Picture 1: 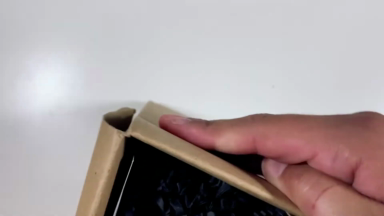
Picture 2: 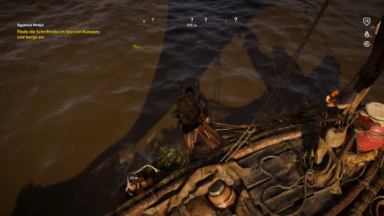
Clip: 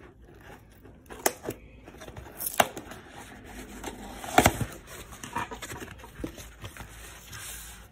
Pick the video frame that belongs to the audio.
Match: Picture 1